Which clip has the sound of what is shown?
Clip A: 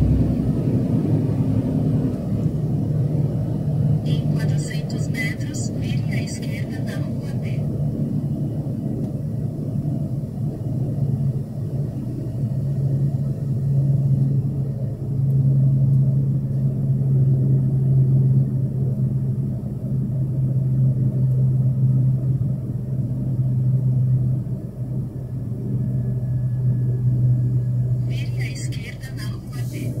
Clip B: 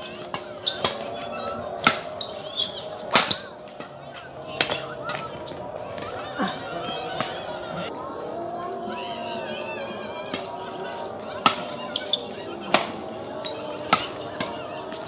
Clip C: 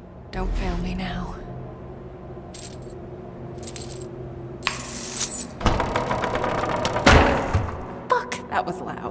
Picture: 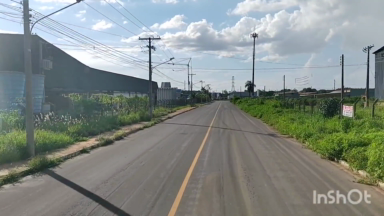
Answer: A